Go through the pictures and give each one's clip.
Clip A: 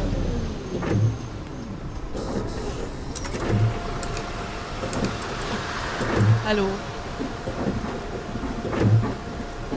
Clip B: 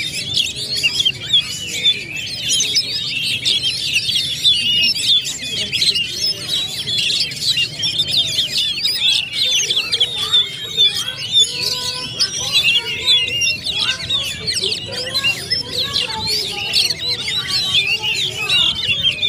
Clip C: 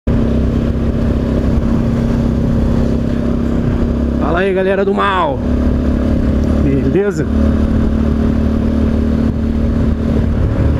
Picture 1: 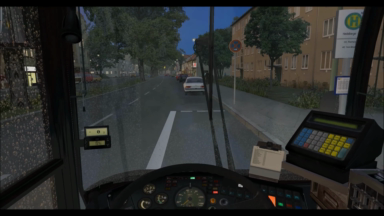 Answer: A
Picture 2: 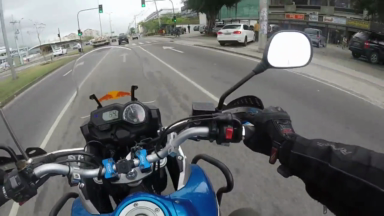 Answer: C